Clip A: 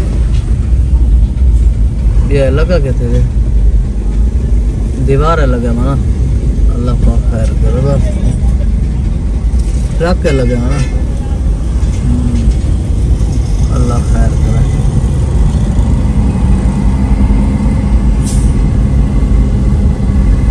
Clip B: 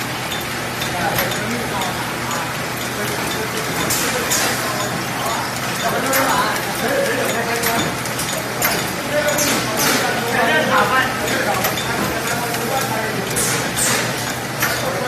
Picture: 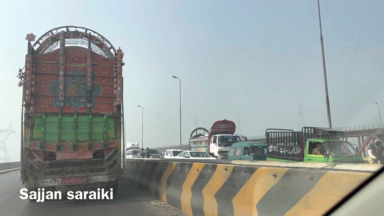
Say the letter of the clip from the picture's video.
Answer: A